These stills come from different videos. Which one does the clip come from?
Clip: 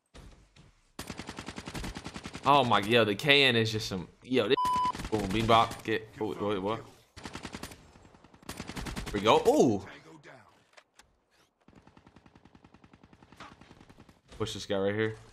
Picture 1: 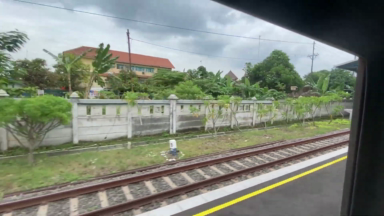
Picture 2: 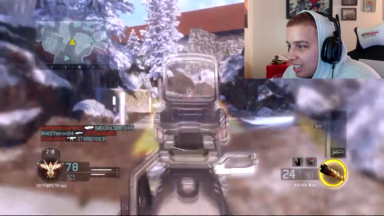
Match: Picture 2